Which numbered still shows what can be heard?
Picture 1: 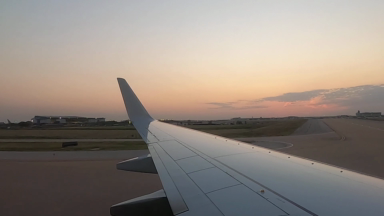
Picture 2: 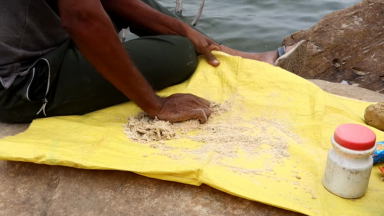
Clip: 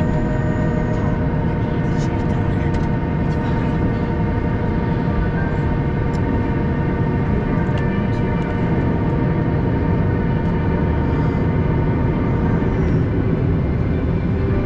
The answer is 1